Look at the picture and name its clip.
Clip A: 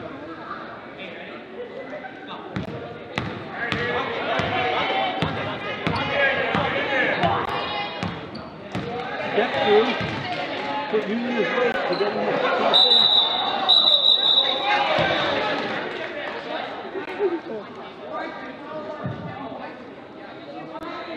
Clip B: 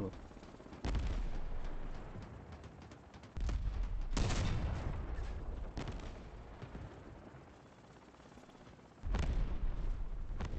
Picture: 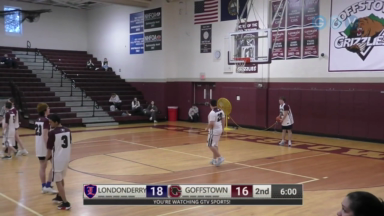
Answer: A